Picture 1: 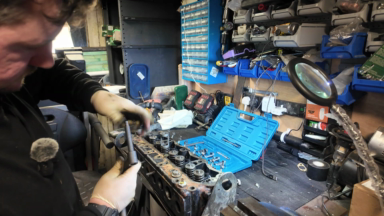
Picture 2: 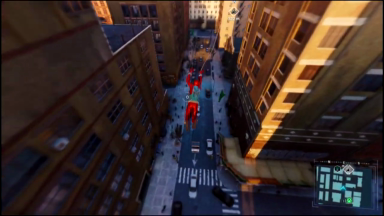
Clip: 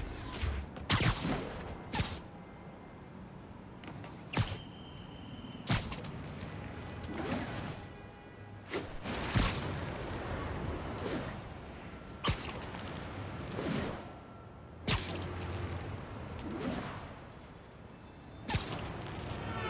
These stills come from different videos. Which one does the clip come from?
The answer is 2